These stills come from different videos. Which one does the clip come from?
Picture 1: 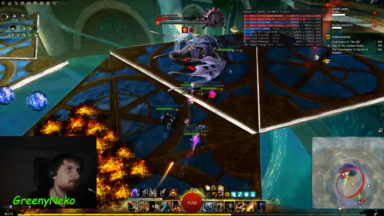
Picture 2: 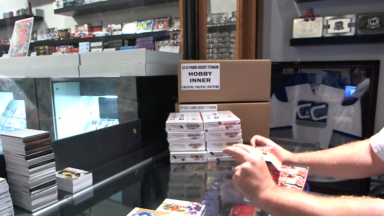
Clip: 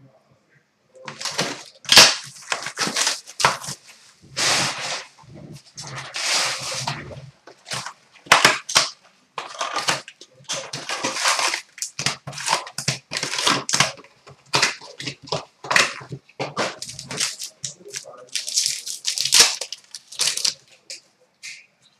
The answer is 2